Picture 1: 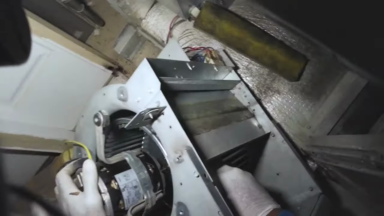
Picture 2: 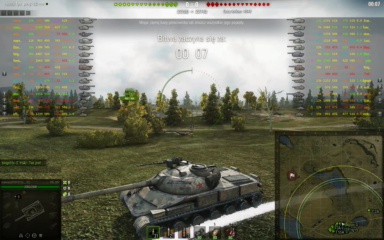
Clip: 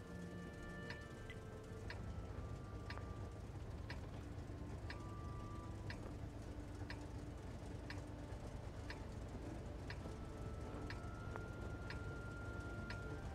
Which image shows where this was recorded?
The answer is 2